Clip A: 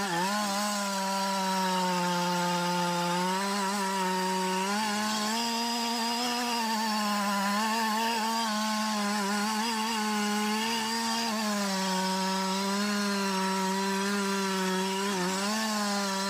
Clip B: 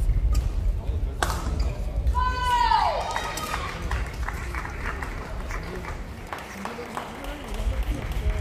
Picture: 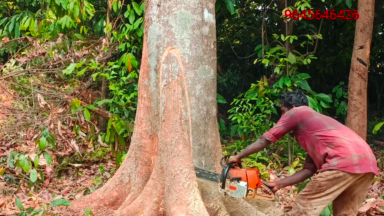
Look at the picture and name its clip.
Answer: A